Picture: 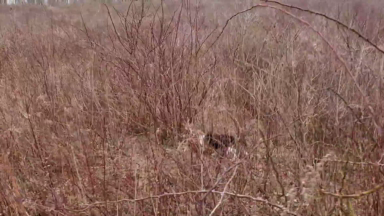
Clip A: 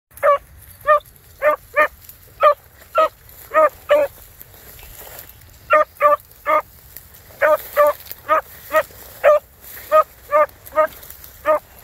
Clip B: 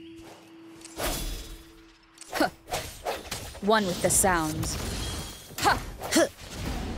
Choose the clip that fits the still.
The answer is A